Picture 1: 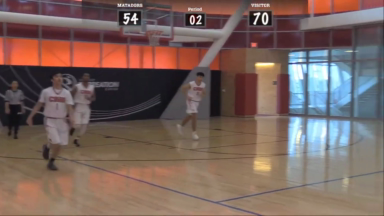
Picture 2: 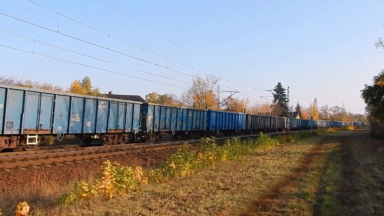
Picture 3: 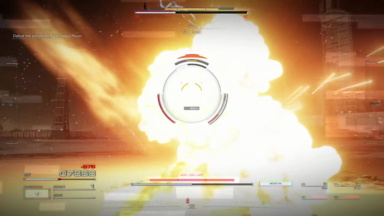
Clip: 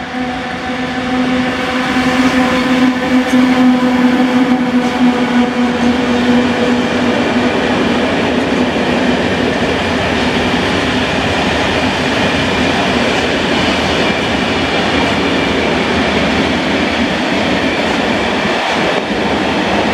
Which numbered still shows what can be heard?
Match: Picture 2